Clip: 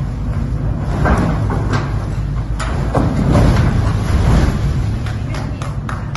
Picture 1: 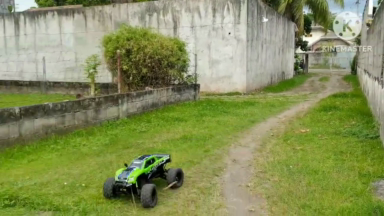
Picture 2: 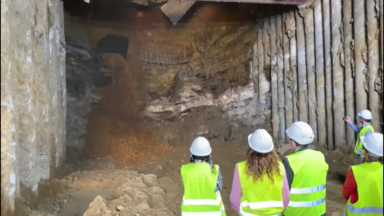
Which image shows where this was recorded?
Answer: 2